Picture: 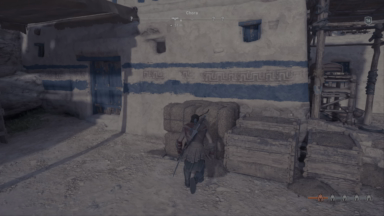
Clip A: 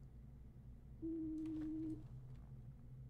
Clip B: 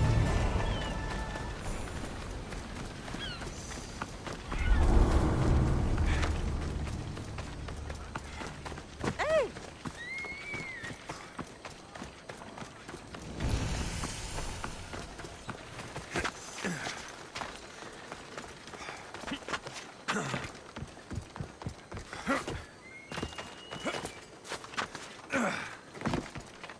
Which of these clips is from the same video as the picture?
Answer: B